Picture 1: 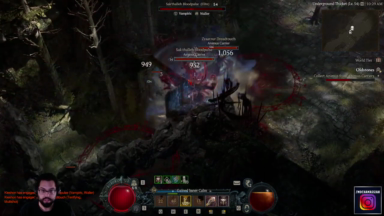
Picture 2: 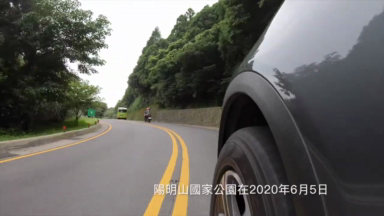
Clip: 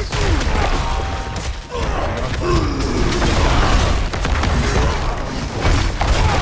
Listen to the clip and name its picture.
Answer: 1